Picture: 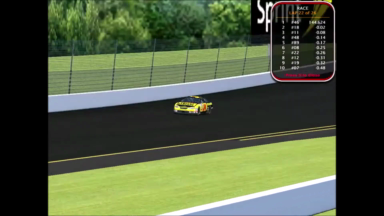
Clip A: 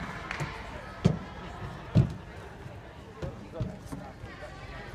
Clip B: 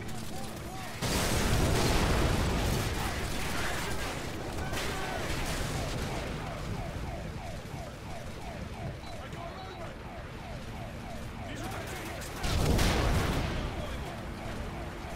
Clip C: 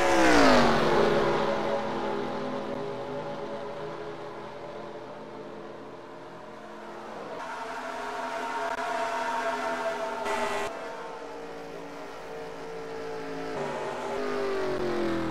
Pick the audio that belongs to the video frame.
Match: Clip C